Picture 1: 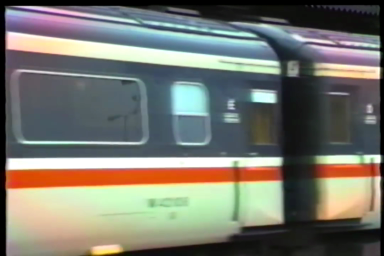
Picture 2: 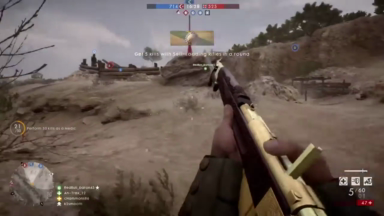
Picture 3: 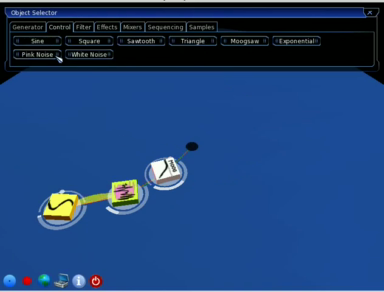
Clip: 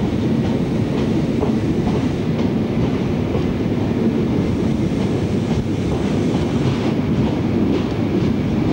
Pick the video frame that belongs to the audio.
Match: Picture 1